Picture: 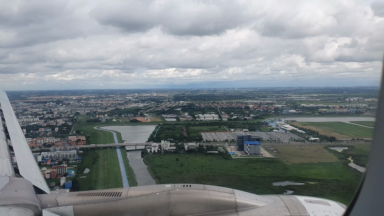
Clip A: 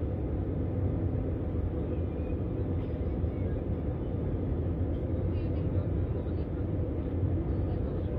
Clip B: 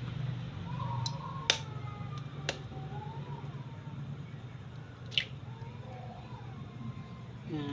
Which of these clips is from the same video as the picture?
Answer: A